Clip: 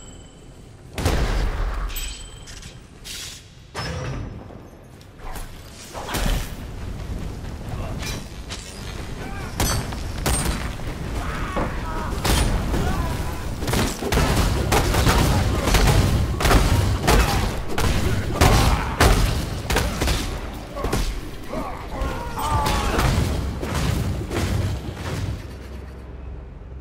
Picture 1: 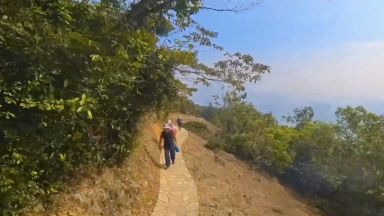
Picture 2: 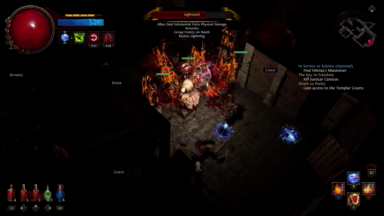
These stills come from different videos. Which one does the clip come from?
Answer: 2